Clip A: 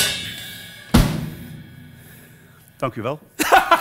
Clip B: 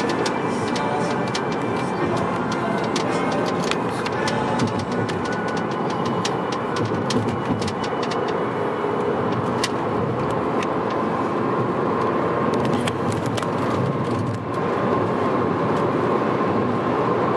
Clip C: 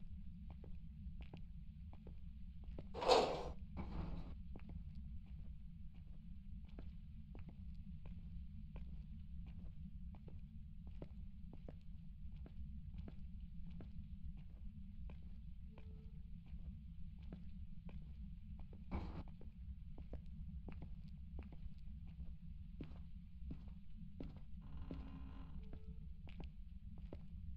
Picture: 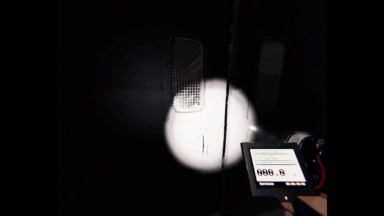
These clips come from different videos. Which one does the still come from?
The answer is C